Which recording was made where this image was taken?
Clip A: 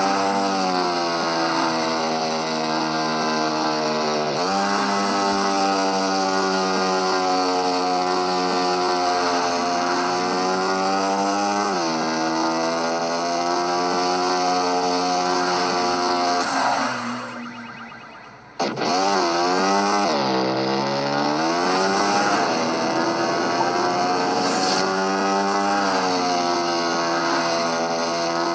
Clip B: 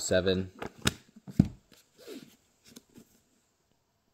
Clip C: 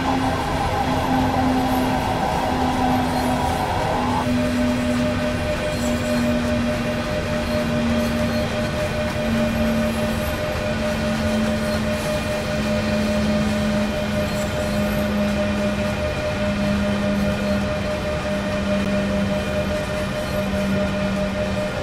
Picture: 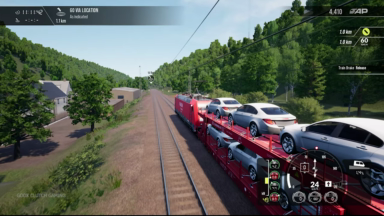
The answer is C